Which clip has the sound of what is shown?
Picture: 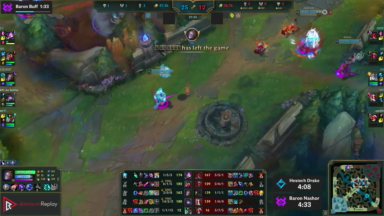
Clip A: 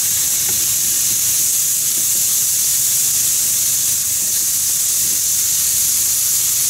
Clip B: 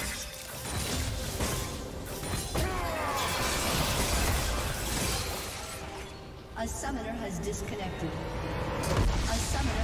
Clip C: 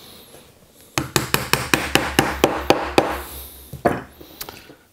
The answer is B